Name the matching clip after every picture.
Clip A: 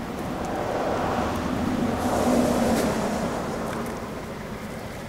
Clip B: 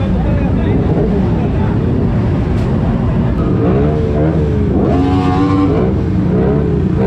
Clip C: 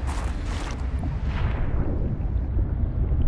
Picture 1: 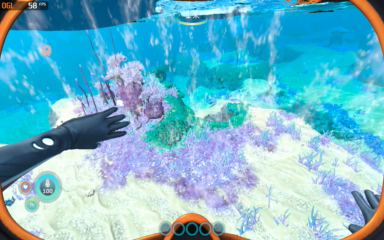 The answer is C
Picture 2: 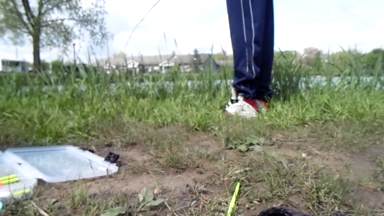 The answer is A